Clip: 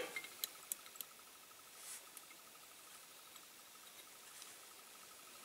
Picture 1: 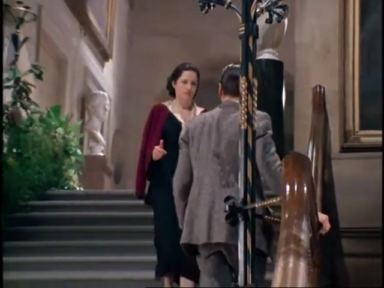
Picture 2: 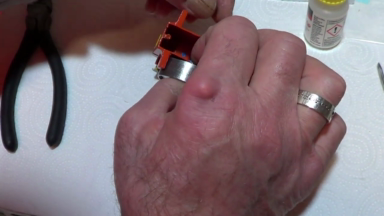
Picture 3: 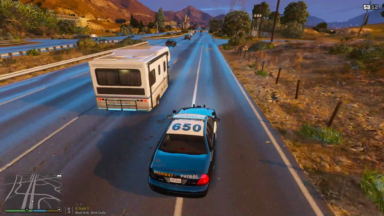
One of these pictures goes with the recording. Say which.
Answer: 2